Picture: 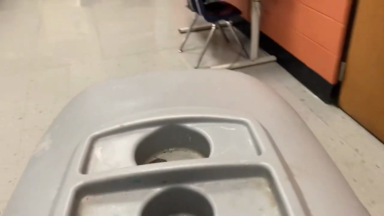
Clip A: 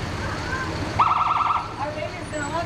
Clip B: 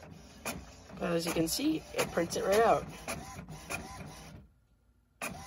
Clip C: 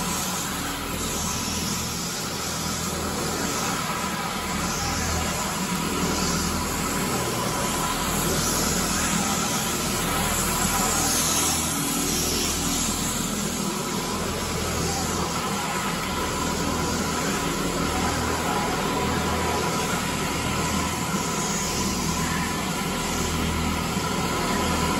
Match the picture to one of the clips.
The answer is C